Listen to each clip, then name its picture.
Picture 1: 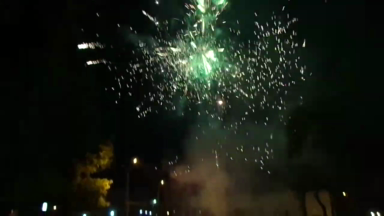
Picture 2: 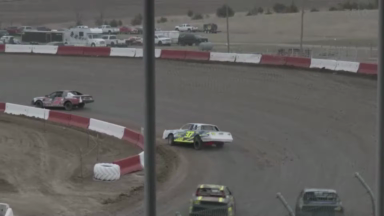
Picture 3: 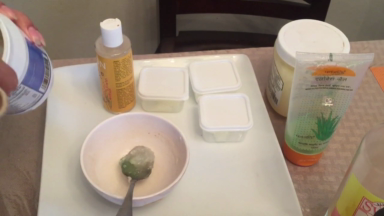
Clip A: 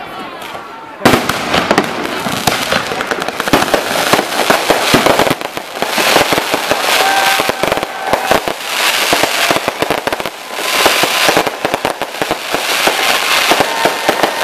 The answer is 1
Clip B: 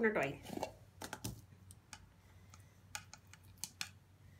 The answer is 3